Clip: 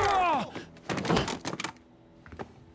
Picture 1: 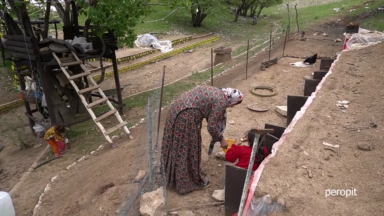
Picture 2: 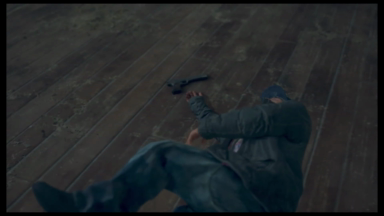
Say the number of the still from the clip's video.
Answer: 2